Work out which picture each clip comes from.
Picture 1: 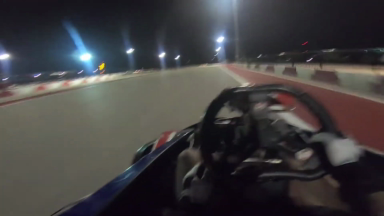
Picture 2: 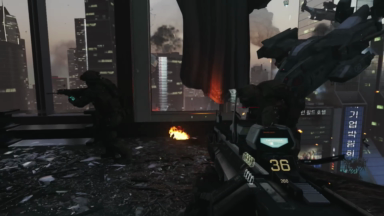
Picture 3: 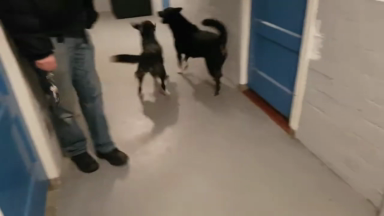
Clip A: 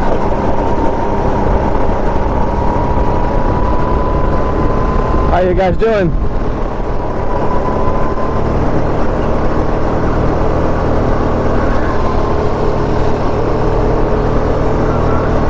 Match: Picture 1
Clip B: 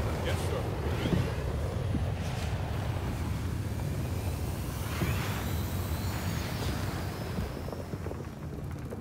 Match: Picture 2